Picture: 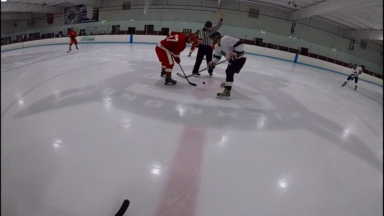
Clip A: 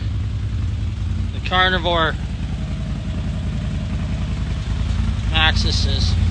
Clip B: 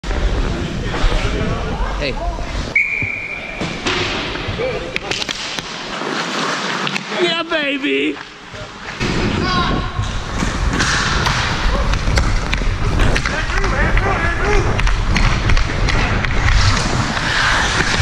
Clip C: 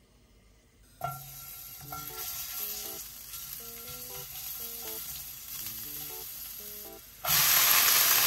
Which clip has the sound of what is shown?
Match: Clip B